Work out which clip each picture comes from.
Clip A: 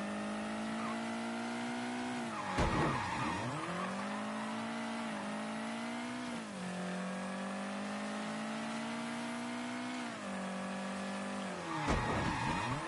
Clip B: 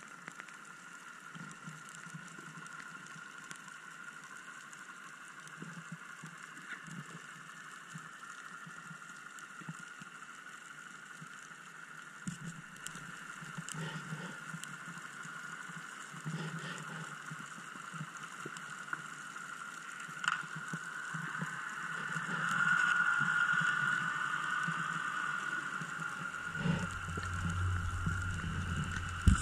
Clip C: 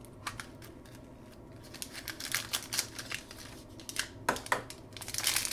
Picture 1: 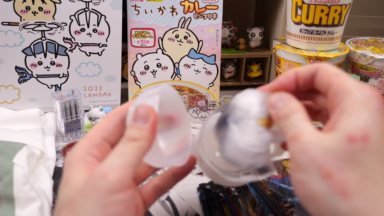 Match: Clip C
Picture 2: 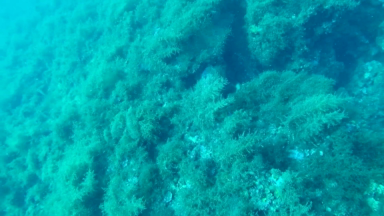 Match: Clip B